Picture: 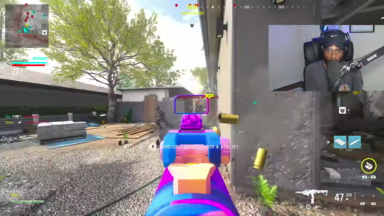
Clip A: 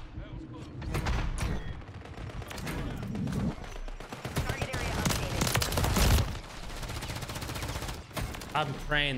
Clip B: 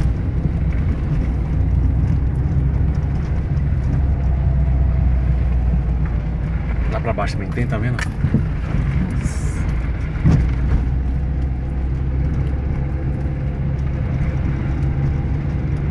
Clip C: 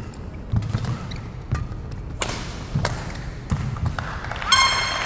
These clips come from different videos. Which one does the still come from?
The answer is A